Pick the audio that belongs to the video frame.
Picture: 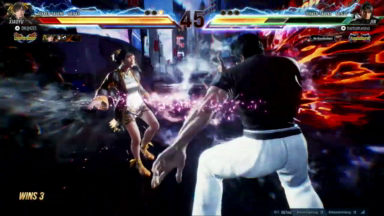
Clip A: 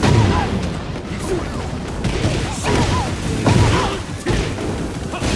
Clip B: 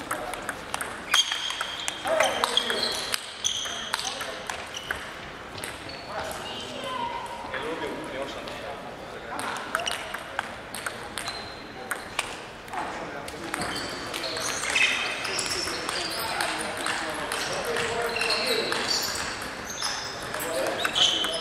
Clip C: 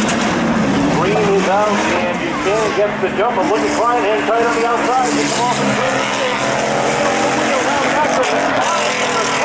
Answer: A